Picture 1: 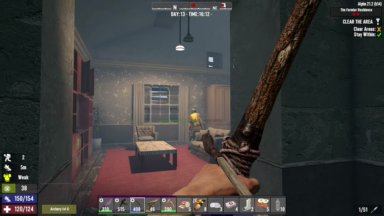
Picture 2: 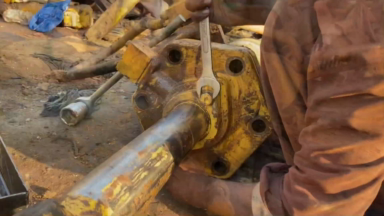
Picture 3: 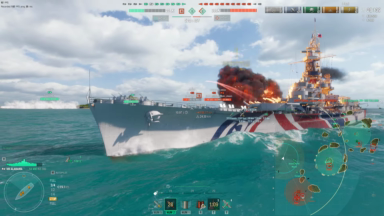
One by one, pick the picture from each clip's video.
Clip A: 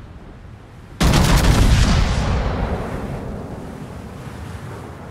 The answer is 3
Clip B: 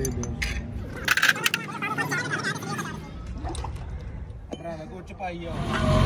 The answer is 2